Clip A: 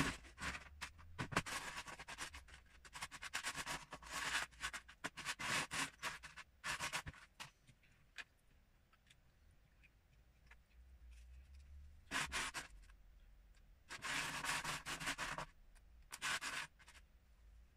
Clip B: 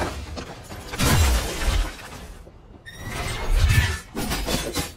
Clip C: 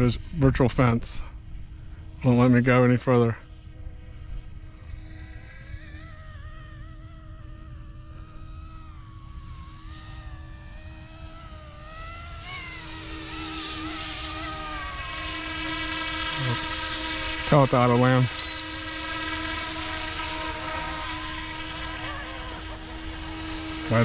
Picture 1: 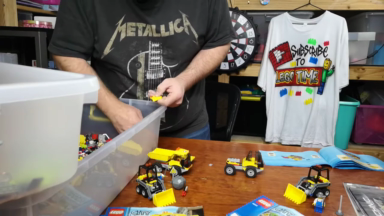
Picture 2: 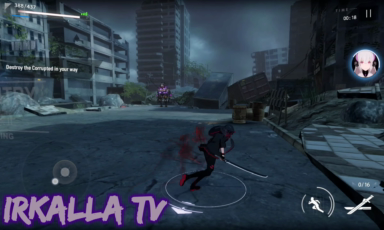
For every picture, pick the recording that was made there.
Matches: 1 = A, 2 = B